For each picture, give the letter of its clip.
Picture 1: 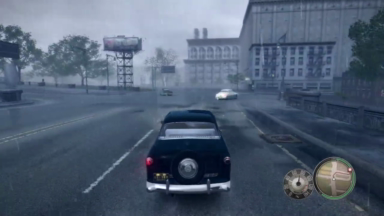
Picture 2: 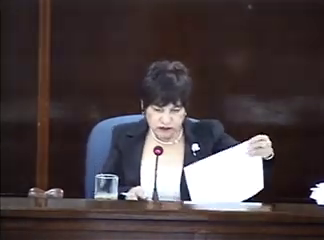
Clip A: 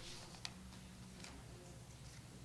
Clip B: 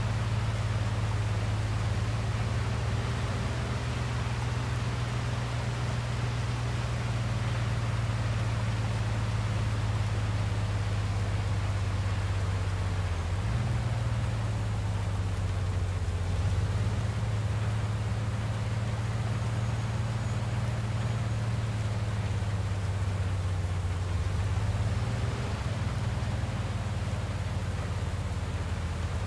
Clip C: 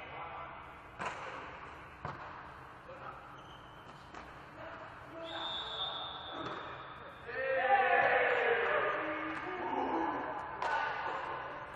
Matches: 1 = B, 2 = A